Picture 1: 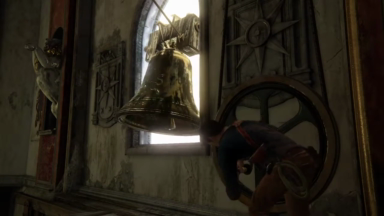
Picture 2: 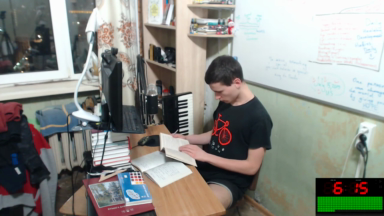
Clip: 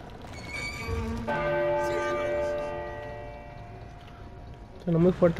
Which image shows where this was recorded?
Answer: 1